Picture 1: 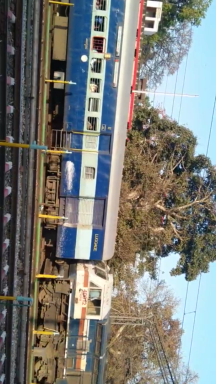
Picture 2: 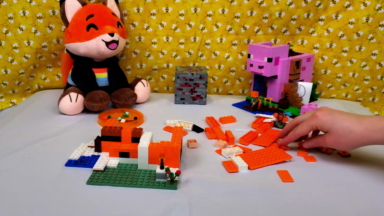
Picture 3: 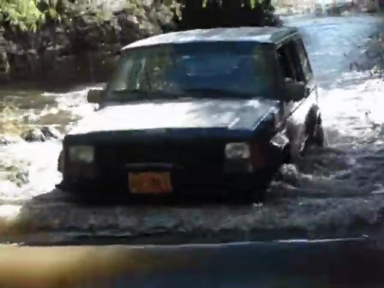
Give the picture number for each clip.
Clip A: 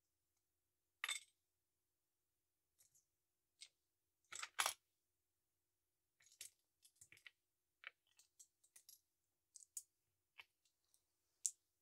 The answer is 2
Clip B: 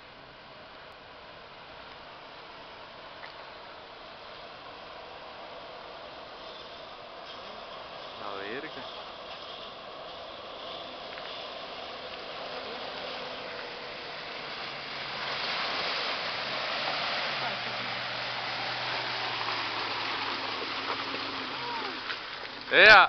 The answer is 3